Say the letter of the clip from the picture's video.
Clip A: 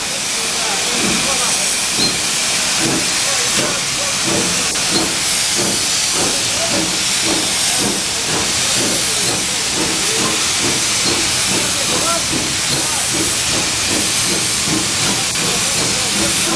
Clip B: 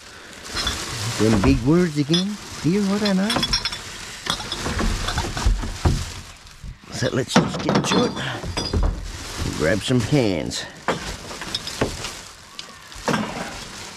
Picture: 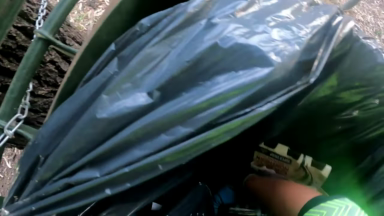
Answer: B